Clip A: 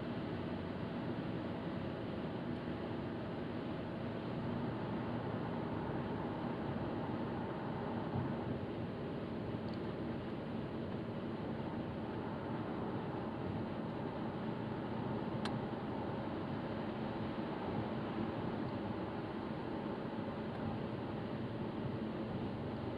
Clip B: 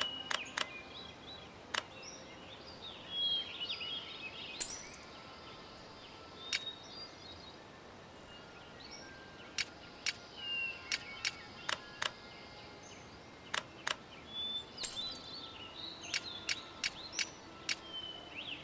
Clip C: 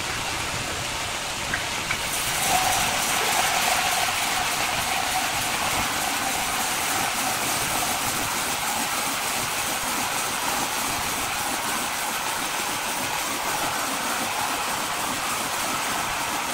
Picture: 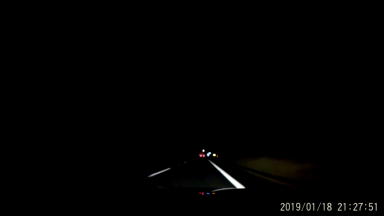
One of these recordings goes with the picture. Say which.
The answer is A